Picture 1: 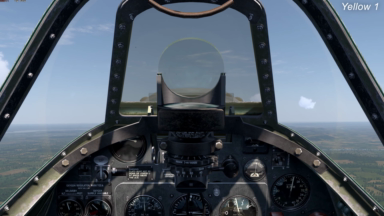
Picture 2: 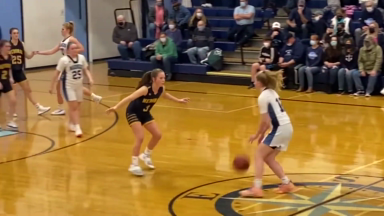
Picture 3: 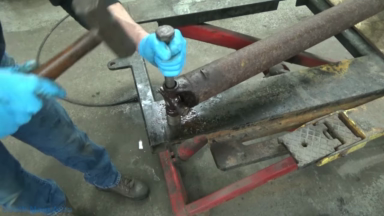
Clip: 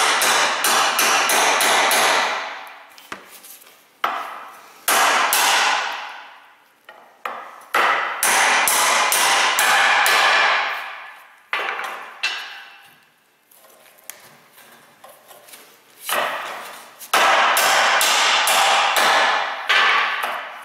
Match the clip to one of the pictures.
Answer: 3